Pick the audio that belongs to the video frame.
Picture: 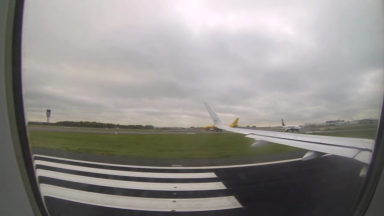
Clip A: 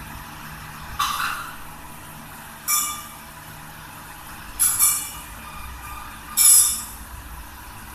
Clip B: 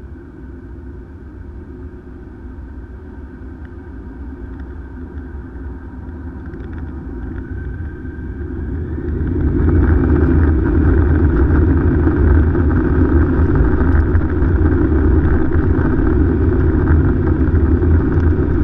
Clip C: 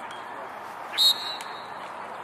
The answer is B